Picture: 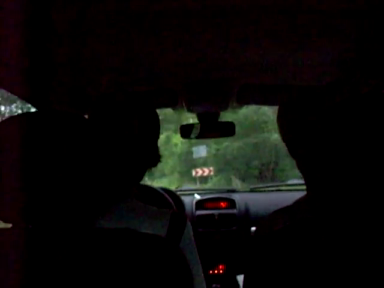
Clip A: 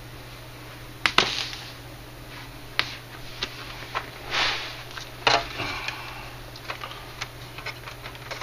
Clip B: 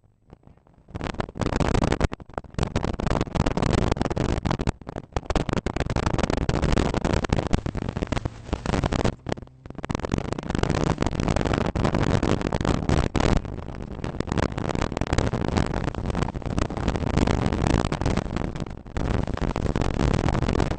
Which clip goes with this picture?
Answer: B